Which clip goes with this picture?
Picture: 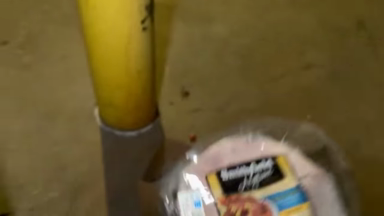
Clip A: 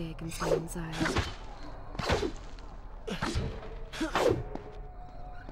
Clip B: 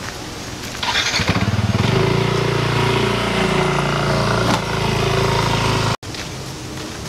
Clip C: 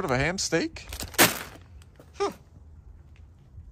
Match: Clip C